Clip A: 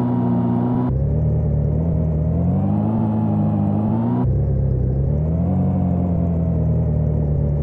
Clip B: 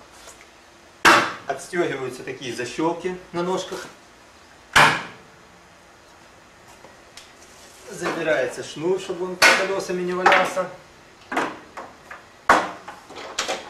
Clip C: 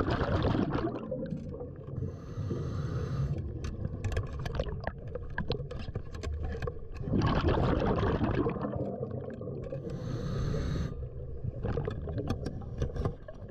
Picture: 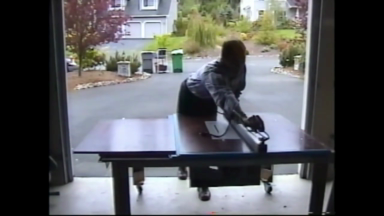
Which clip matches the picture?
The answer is B